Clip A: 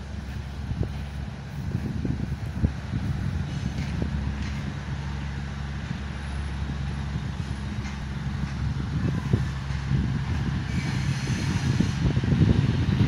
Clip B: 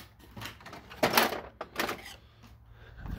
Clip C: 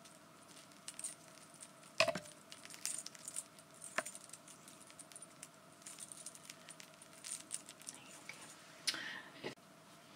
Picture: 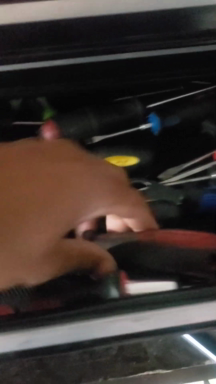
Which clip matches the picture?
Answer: B